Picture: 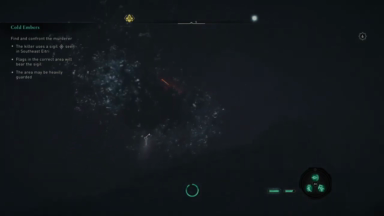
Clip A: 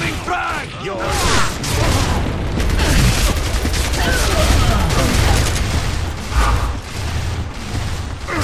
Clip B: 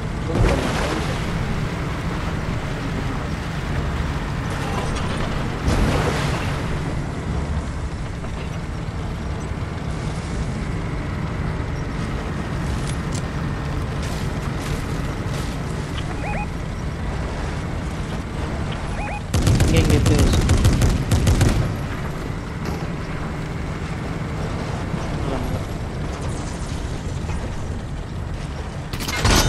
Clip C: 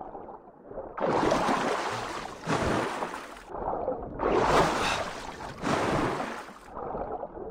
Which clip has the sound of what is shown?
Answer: C